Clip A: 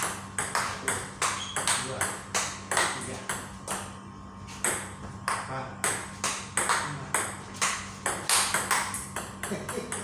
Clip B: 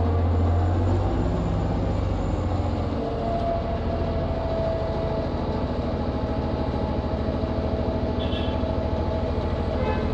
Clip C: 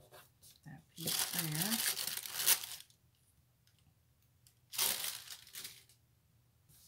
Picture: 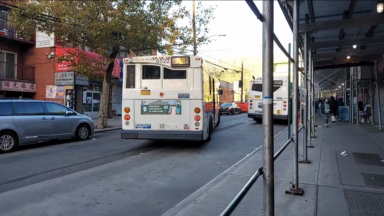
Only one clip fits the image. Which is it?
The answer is B